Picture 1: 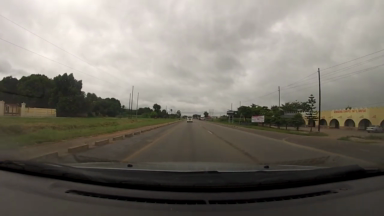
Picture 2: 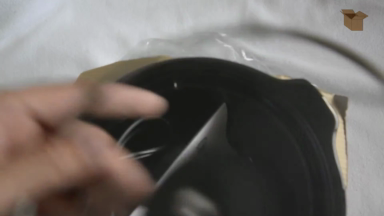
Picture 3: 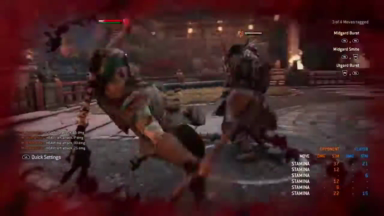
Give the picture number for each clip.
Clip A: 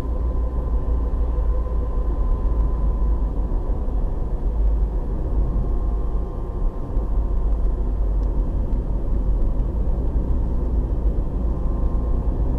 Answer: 1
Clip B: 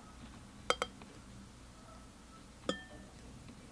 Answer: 2